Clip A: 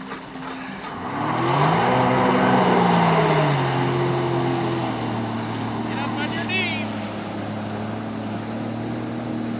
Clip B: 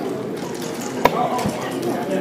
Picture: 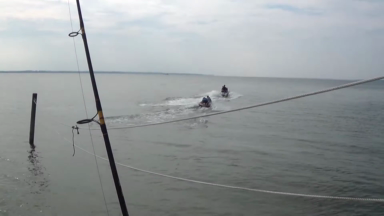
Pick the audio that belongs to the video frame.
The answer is A